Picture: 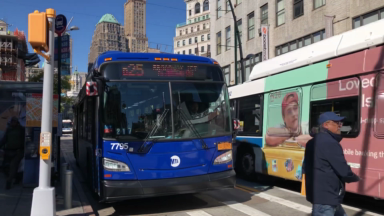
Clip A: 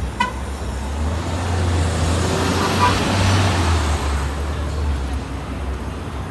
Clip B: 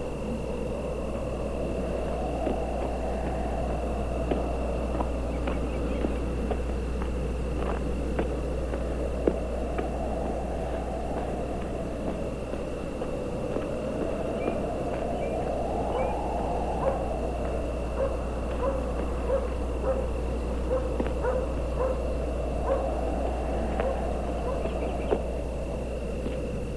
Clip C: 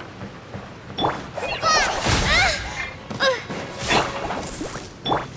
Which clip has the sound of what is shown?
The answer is A